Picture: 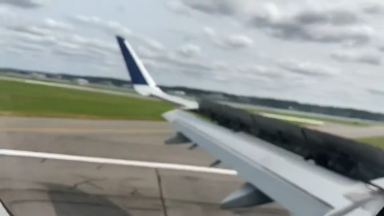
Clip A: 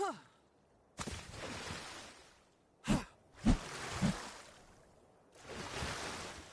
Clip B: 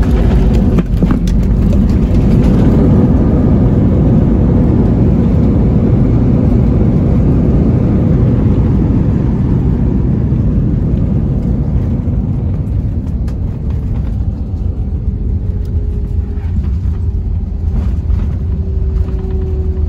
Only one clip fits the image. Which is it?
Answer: B